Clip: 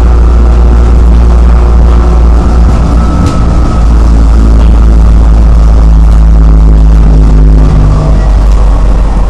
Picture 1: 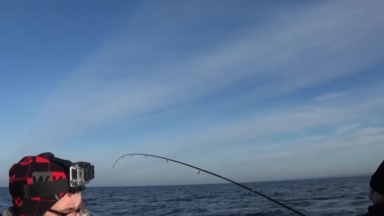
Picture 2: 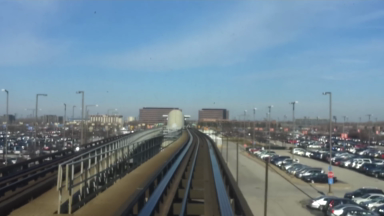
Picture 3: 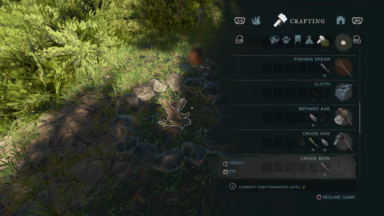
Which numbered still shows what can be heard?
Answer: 2